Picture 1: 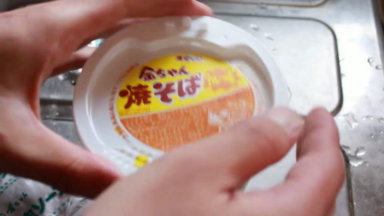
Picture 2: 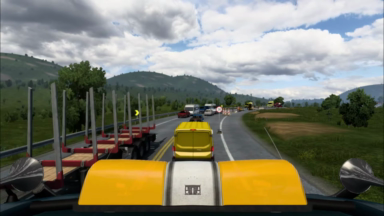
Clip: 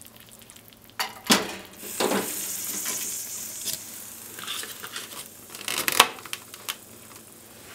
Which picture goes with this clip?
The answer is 1